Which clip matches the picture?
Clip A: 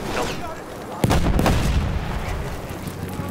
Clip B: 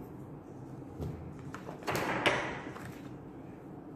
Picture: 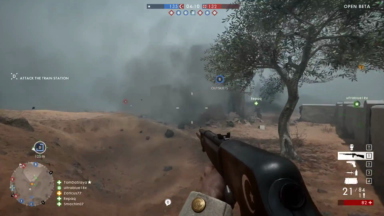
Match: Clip A